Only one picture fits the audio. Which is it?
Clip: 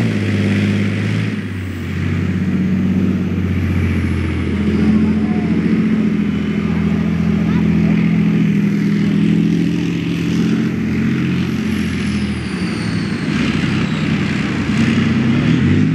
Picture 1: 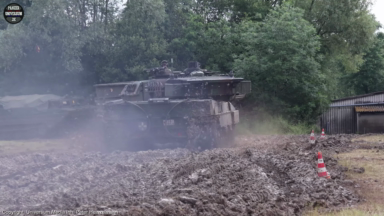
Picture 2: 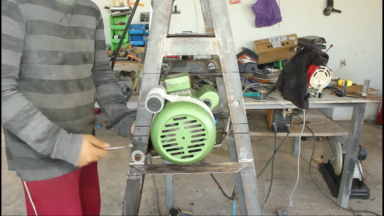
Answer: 1